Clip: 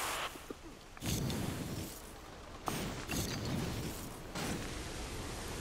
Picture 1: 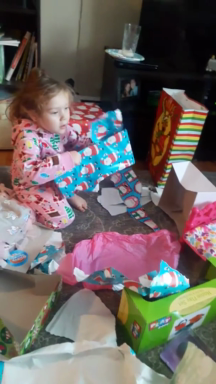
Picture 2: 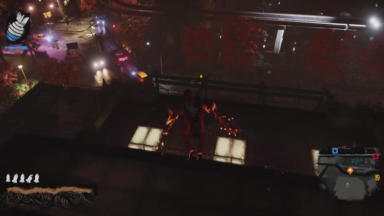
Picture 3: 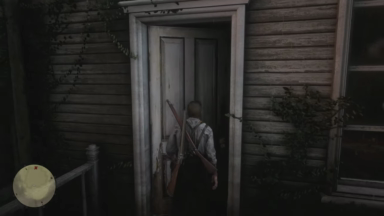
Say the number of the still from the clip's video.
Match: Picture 2